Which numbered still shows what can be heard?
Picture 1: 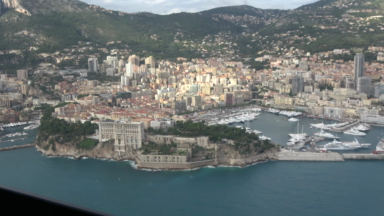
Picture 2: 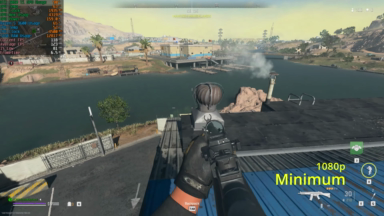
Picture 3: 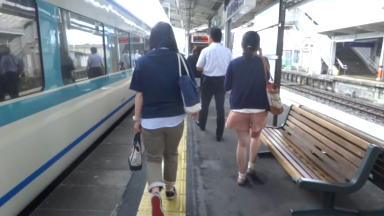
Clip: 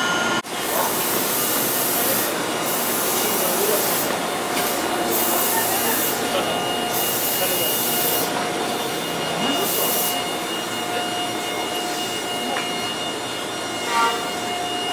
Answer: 3